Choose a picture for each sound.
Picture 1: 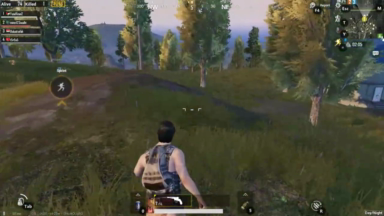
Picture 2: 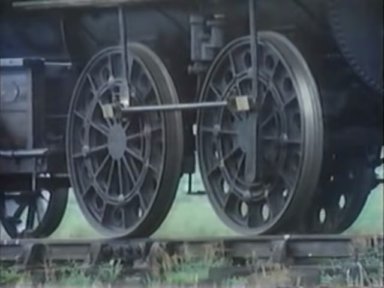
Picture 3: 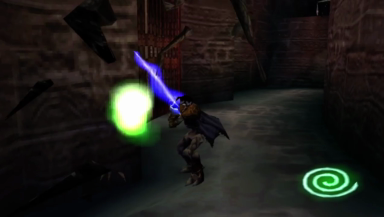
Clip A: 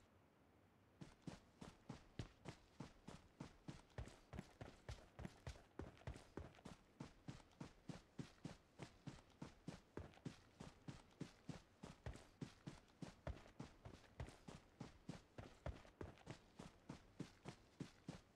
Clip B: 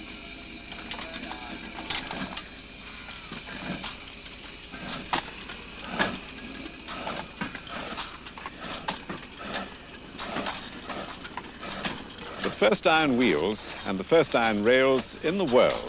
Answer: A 1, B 2